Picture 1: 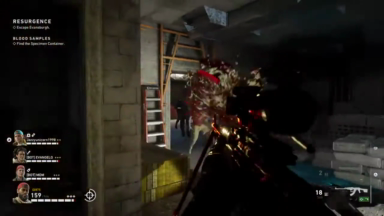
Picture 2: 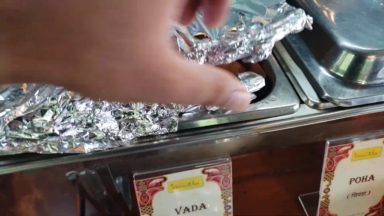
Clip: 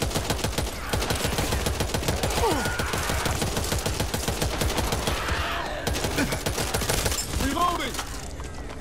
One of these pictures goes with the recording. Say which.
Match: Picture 1